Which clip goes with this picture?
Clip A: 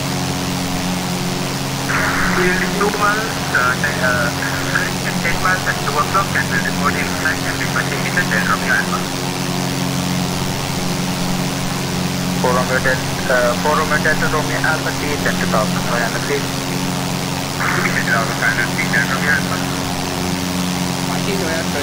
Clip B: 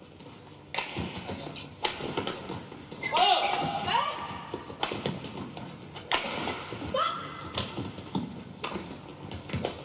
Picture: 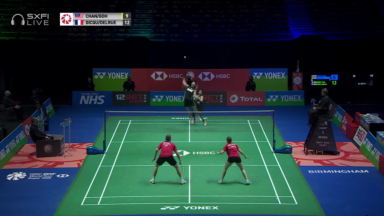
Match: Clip B